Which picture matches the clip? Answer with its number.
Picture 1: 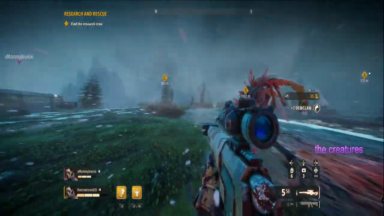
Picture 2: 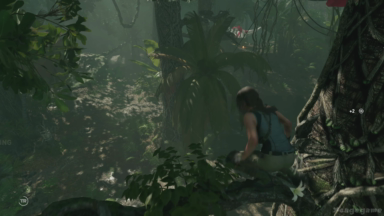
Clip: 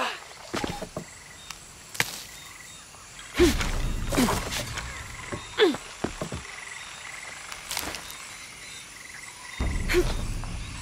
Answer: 2